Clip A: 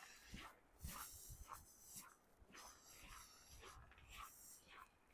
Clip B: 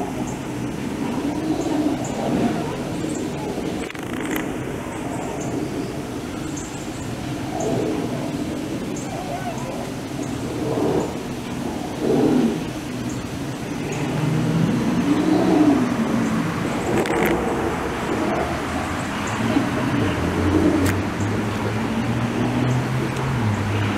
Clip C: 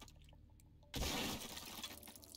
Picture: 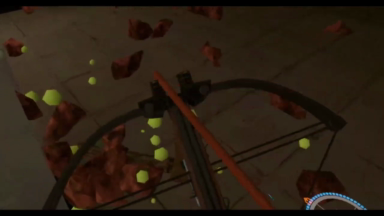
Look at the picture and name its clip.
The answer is C